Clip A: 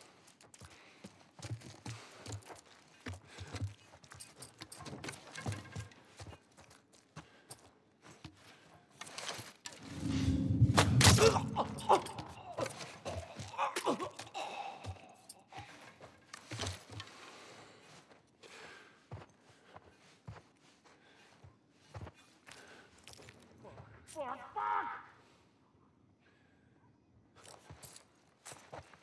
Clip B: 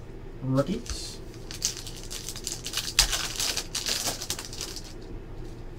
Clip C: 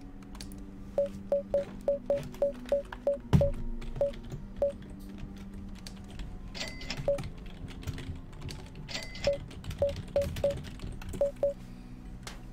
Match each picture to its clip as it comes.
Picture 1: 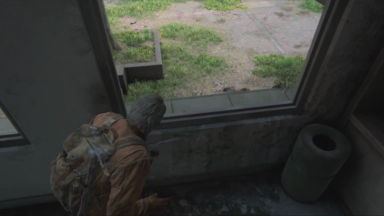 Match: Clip A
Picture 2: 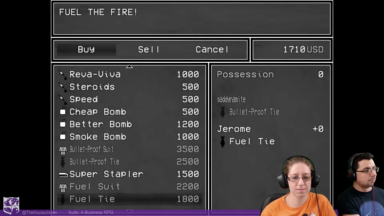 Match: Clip C